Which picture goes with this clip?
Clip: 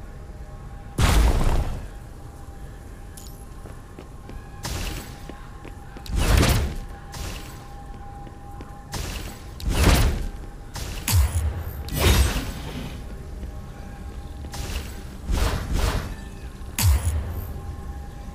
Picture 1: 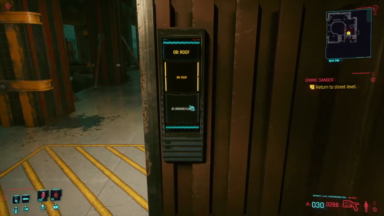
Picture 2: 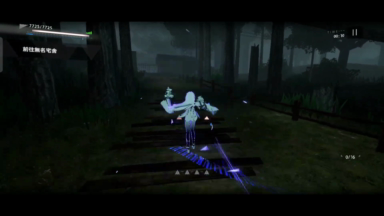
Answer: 2